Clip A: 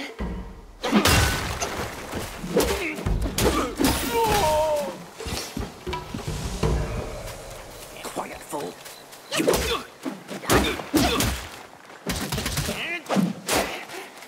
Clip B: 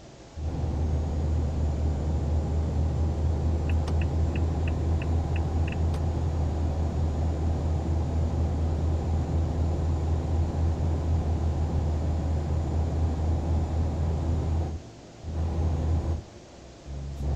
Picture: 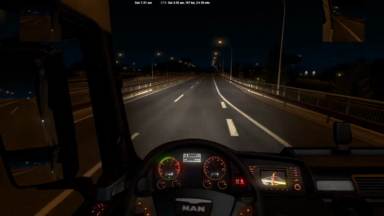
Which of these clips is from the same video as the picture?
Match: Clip B